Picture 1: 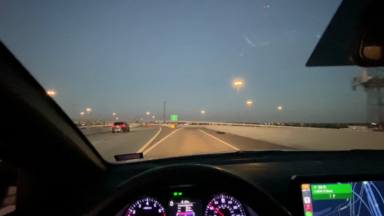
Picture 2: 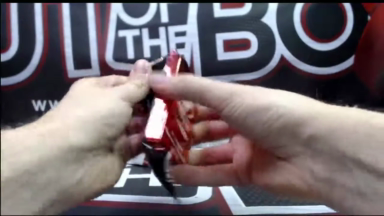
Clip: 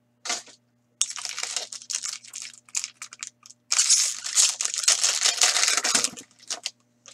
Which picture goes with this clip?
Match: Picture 2